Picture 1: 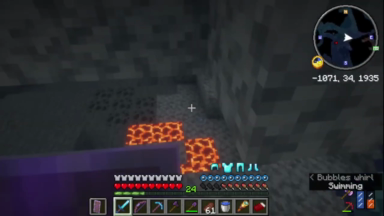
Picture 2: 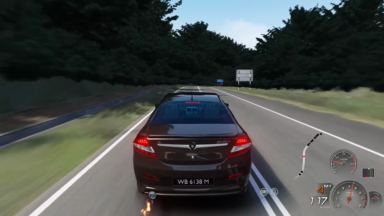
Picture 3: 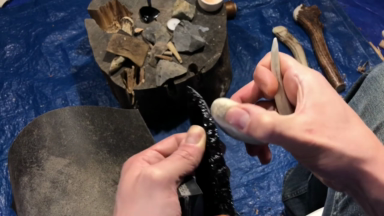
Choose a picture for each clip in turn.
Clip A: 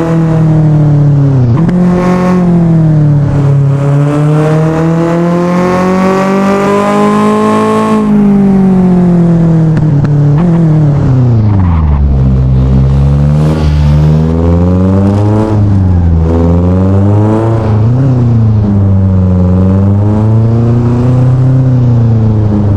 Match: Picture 2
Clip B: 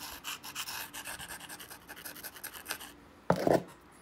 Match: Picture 3